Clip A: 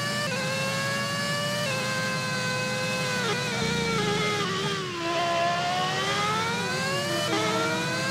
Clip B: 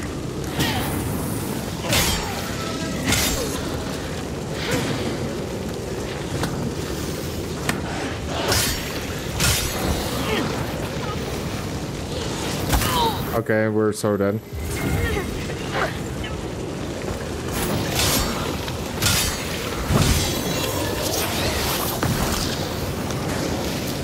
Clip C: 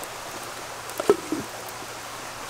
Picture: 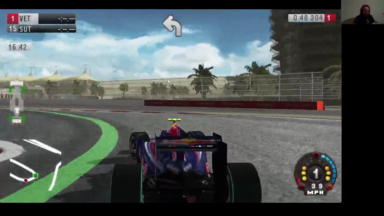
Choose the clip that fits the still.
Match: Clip A